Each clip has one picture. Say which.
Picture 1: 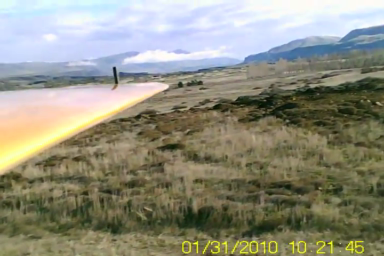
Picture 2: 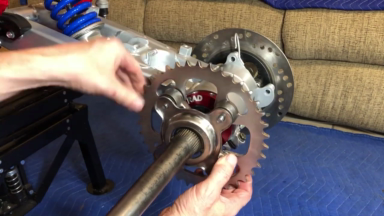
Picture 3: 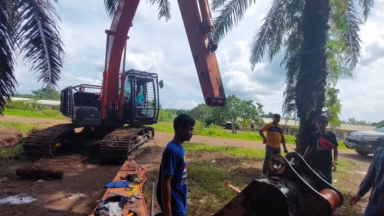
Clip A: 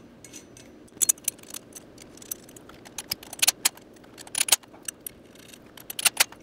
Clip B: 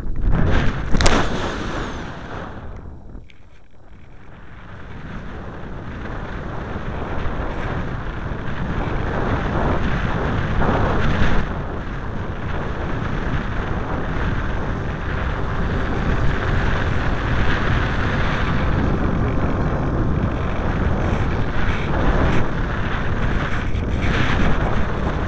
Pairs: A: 2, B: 1